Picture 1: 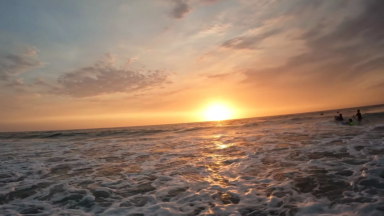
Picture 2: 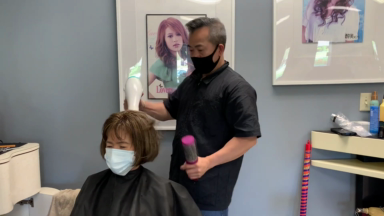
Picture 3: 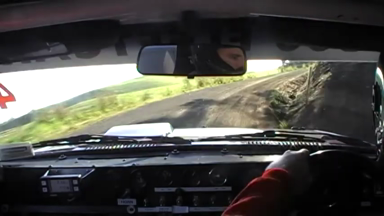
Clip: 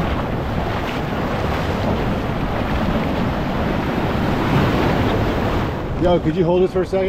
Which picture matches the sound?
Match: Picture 1